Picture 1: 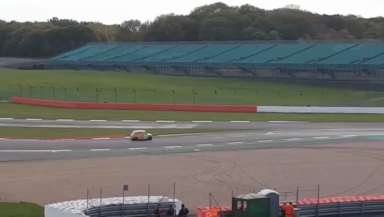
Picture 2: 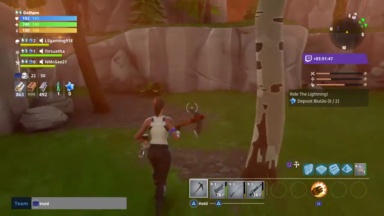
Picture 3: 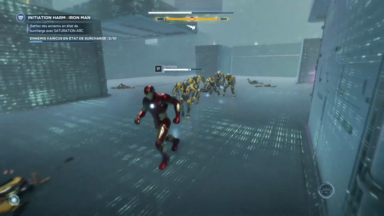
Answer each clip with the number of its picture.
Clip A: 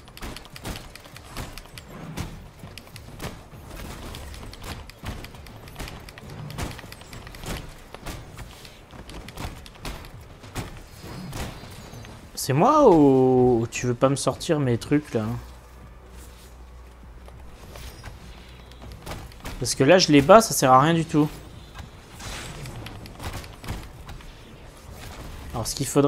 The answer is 3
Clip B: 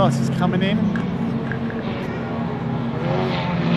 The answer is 1